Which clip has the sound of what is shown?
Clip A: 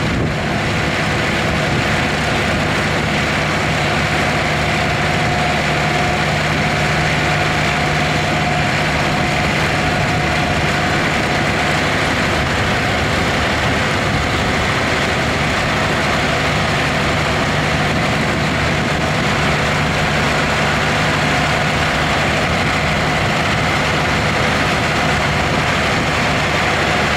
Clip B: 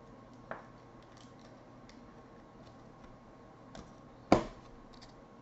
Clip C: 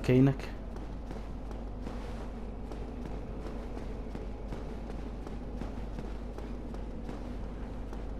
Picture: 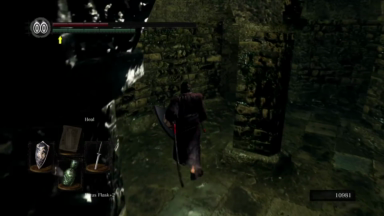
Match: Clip C